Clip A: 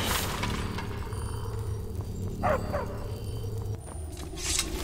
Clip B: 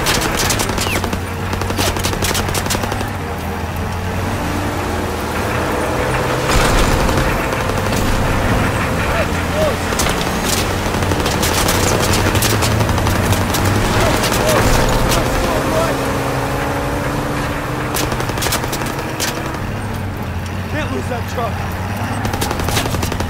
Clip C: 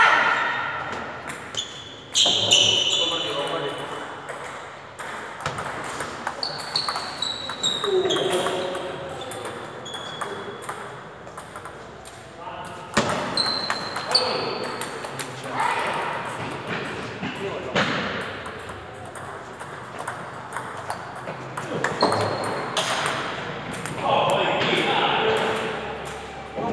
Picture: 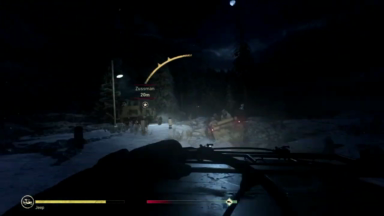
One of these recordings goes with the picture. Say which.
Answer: B